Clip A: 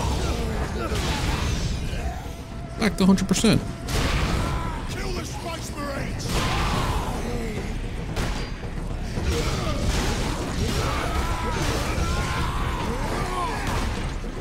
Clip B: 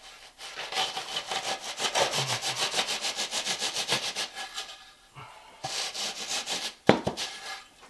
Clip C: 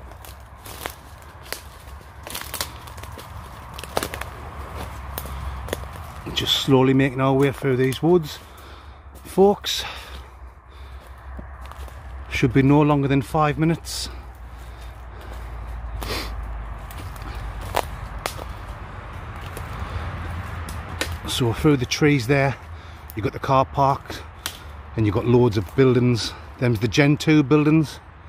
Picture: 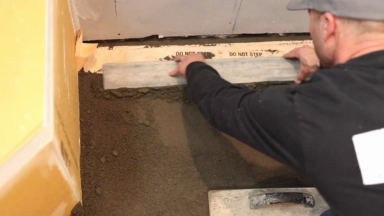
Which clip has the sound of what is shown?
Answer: B